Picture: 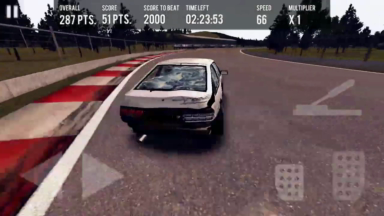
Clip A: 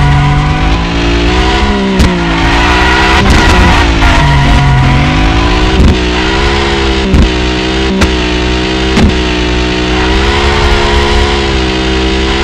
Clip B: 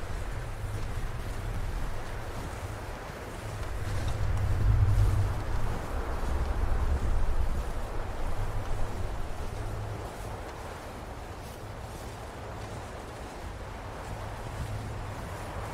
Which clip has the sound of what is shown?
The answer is A